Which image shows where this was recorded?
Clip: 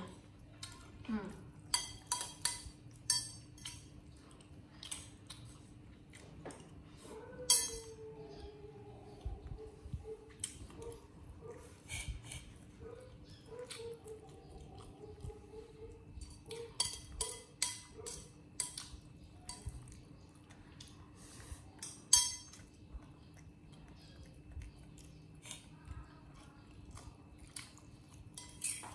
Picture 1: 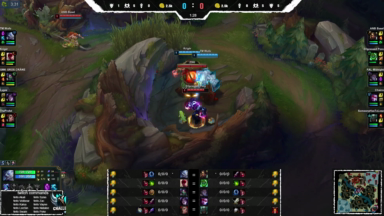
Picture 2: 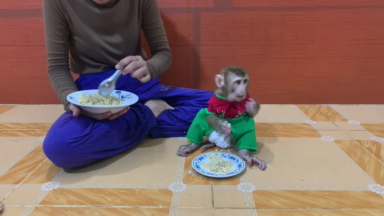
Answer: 2